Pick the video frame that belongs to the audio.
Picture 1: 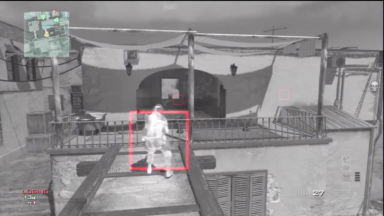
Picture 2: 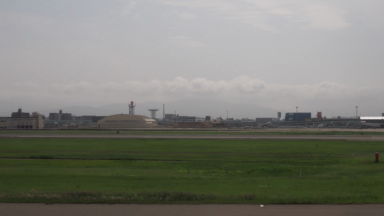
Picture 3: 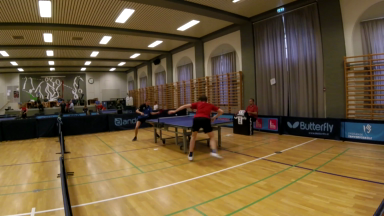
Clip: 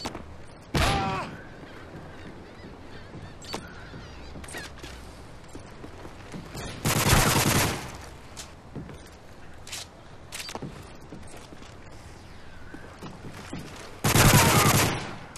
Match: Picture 1